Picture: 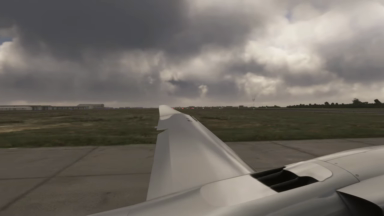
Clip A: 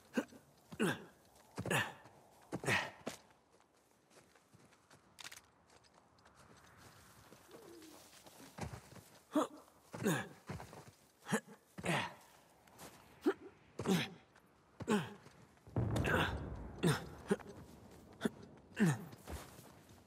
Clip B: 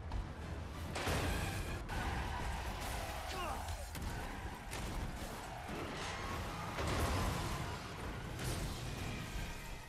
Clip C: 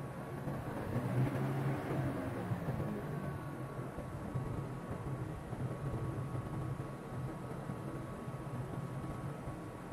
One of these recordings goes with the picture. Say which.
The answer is C